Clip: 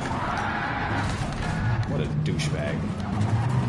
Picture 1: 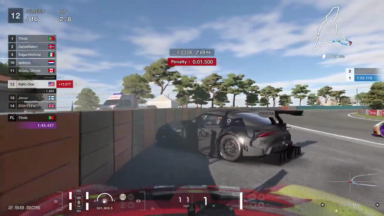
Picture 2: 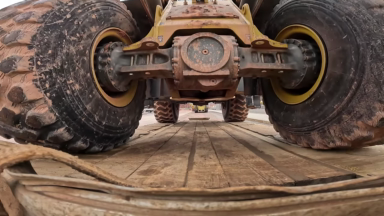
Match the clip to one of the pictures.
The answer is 1